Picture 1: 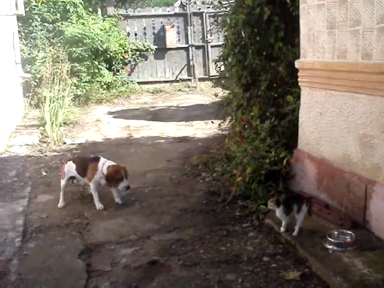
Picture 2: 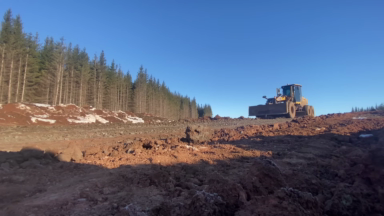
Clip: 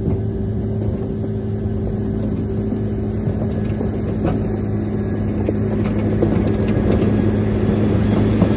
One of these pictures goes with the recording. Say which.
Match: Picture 2